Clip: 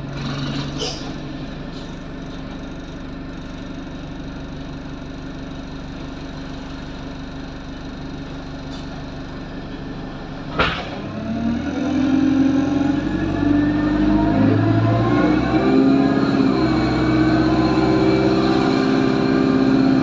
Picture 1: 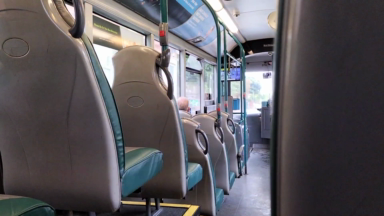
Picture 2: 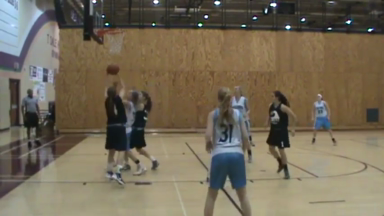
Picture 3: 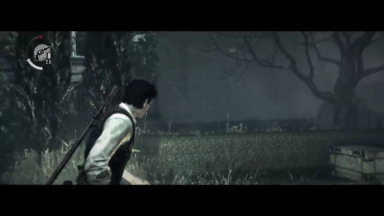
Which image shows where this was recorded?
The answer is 1